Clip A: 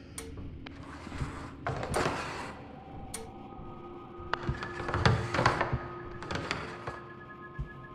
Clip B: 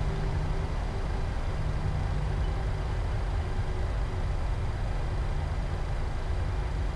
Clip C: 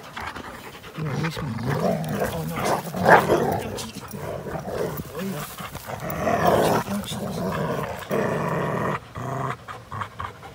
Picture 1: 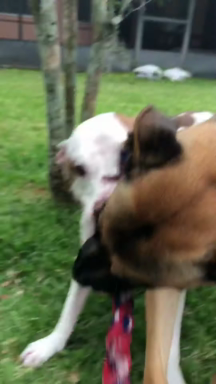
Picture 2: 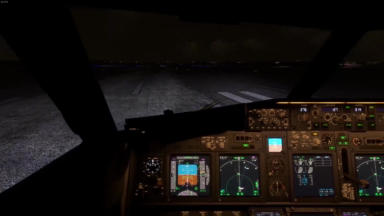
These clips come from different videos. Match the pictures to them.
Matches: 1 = C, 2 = B